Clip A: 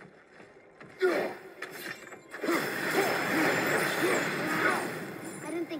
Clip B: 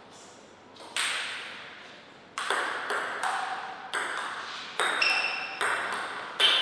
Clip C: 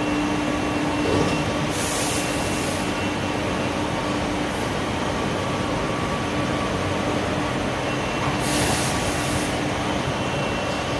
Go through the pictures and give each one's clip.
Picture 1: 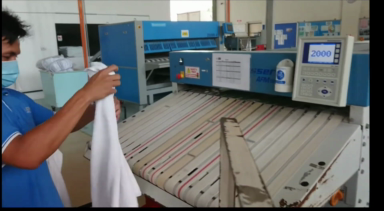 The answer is C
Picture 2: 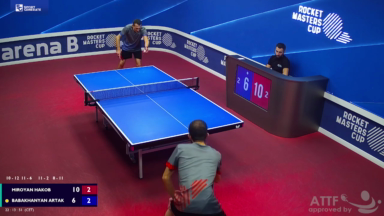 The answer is B